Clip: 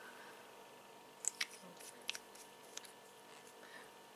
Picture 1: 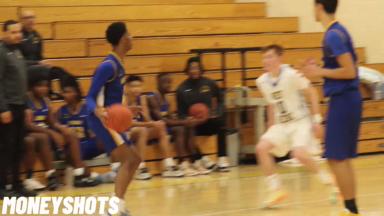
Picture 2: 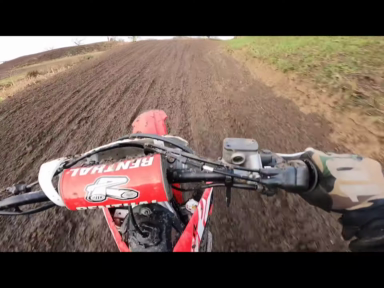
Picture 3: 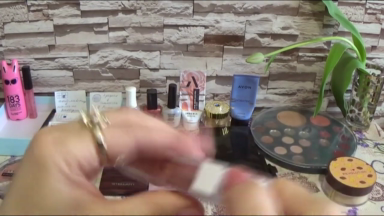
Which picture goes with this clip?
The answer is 3